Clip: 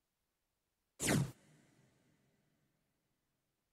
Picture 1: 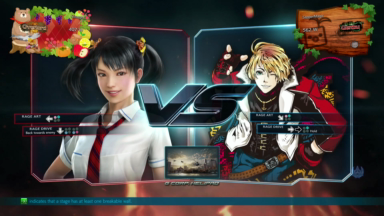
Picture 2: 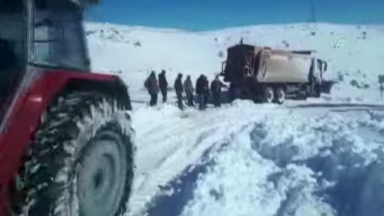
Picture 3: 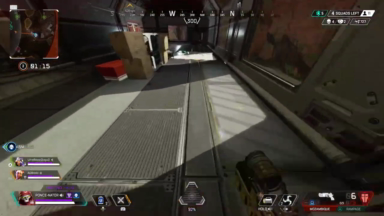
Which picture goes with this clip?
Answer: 1